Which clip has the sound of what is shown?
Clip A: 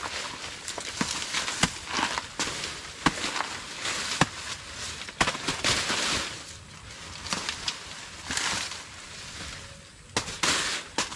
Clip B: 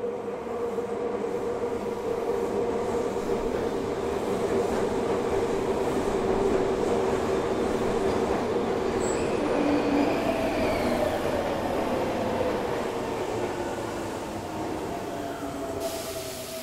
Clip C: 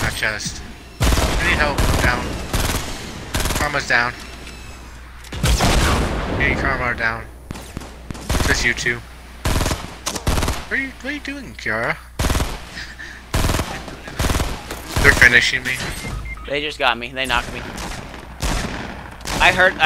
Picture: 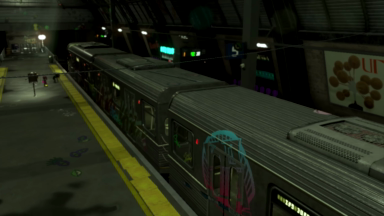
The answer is B